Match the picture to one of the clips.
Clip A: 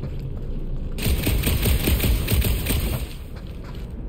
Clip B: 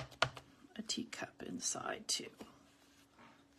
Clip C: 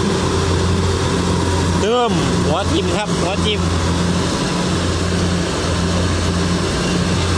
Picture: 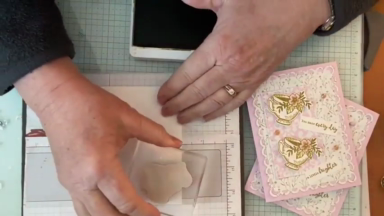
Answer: B